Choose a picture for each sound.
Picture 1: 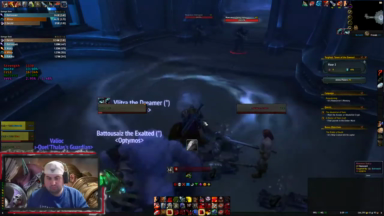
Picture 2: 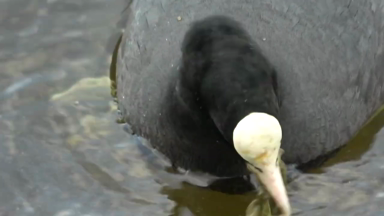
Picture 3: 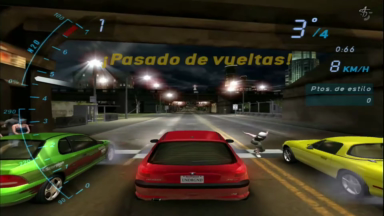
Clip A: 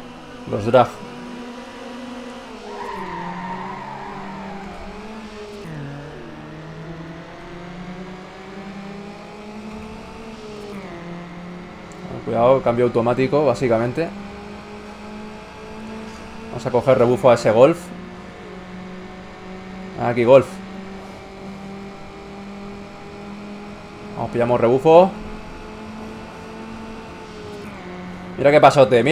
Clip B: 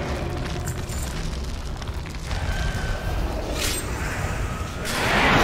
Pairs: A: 3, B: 1